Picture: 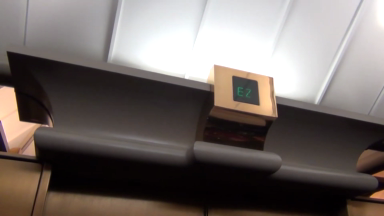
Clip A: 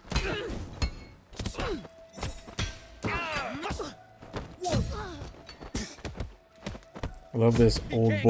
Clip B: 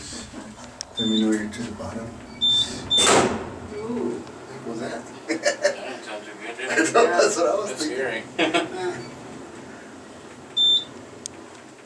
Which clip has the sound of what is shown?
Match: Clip B